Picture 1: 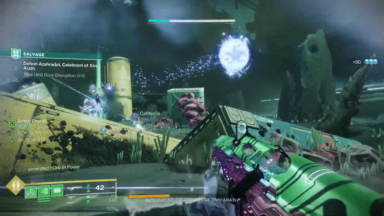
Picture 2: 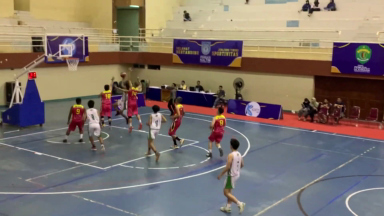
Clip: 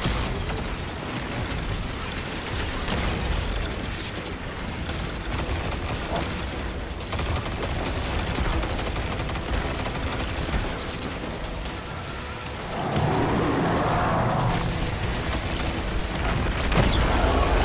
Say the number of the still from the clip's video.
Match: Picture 1